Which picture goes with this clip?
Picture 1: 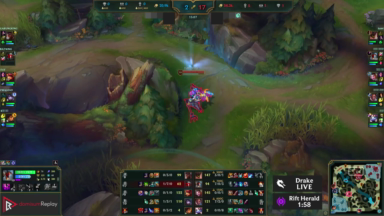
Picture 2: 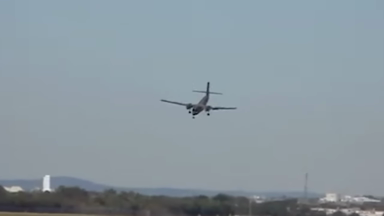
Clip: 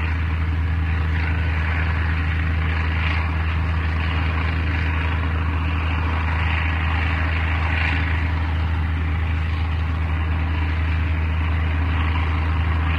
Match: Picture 2